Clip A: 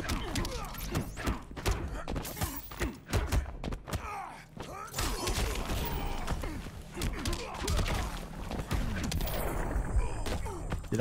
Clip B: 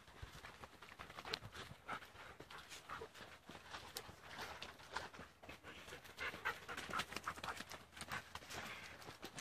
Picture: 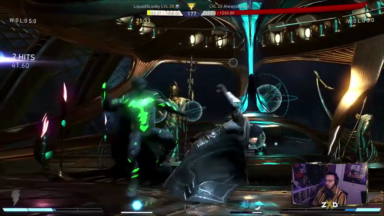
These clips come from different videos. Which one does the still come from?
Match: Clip A